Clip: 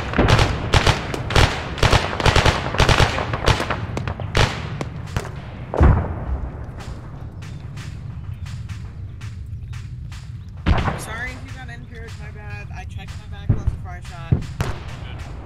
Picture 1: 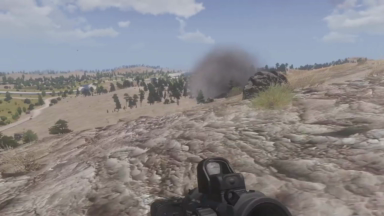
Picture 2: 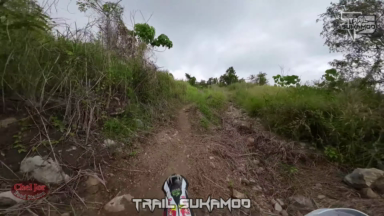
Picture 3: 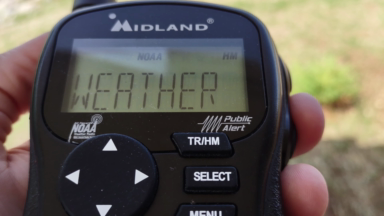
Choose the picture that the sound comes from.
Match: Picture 1